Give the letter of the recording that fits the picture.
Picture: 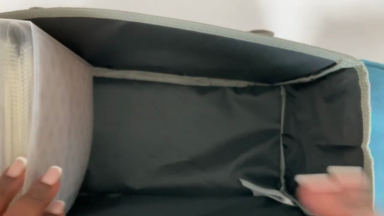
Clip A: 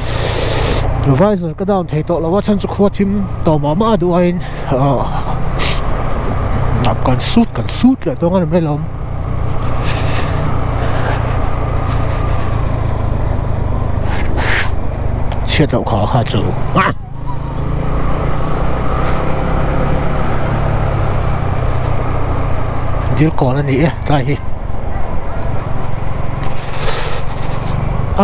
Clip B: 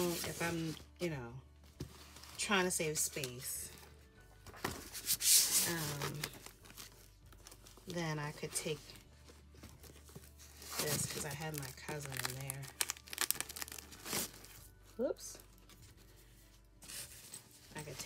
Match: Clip B